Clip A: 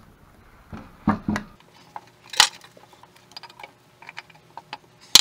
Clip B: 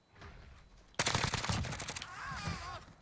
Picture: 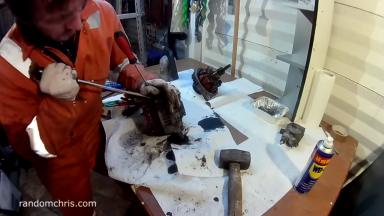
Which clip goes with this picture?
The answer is A